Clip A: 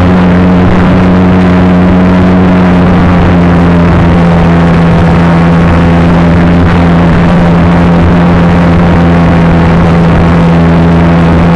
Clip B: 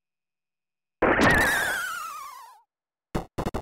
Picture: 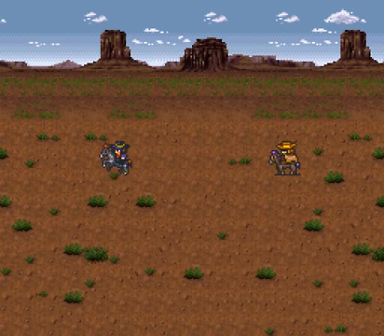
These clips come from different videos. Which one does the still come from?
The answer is B